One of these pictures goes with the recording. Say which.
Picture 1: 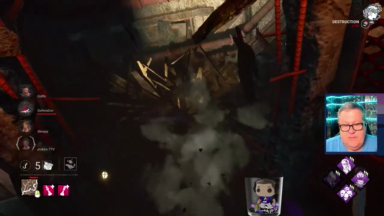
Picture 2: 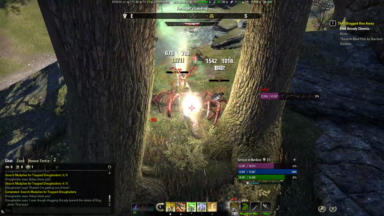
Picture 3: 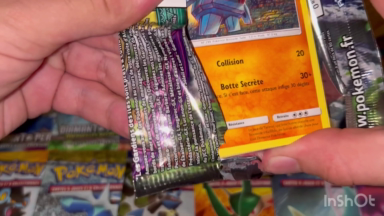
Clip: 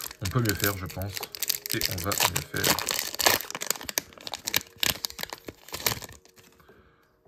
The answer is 3